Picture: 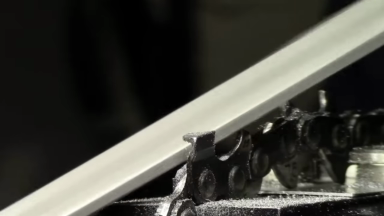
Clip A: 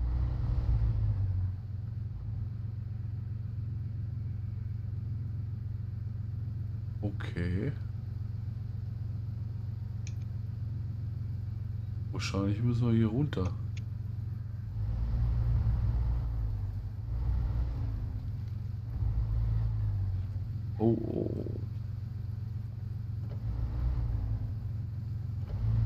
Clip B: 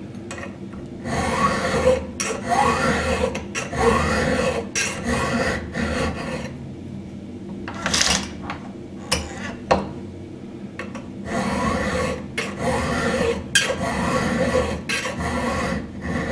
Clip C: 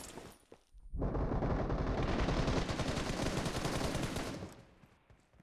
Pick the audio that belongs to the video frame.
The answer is B